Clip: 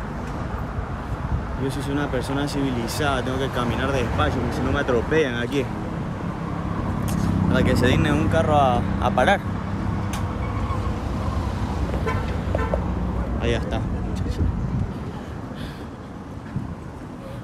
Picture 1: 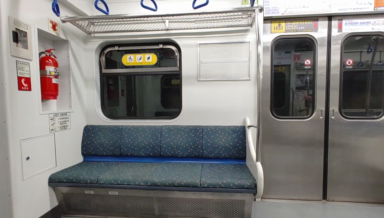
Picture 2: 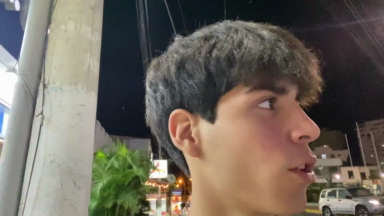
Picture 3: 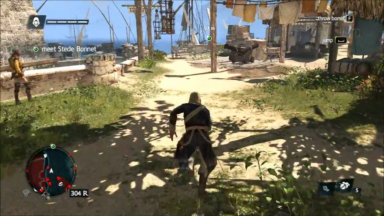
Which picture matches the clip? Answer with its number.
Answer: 2